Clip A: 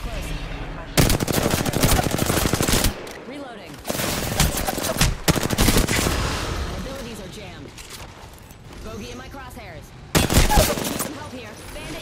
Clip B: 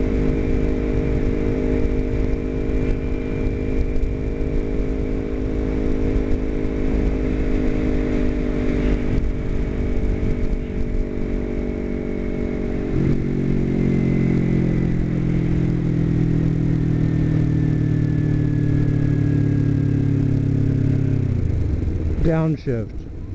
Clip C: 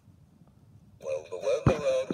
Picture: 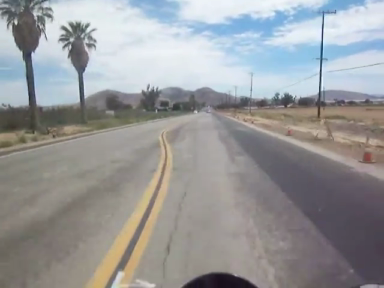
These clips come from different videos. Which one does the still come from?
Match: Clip B